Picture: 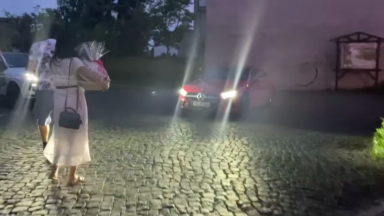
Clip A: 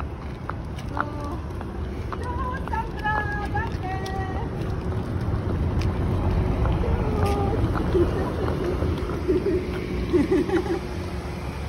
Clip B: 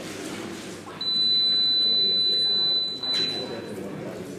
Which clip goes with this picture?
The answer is A